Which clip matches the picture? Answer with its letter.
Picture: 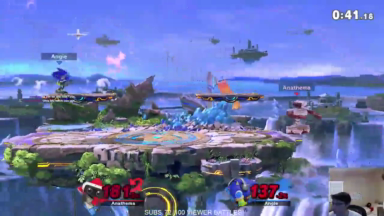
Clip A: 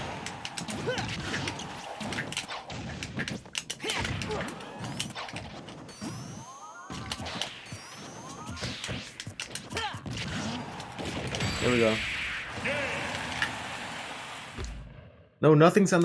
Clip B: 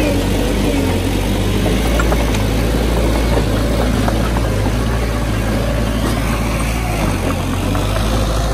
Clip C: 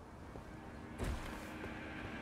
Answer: A